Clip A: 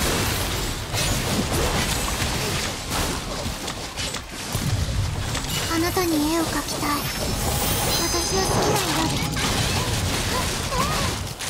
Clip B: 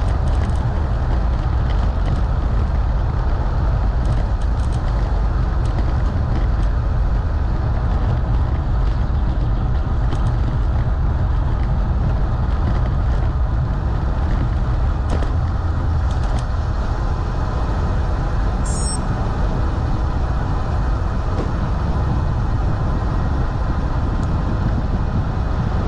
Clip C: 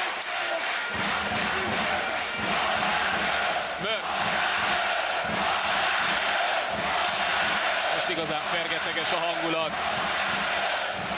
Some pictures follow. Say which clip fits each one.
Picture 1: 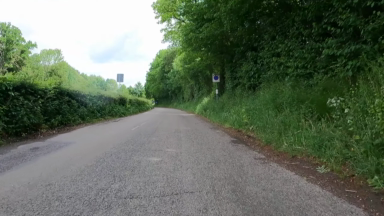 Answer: B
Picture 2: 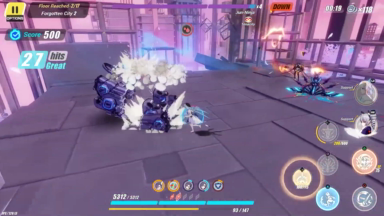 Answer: A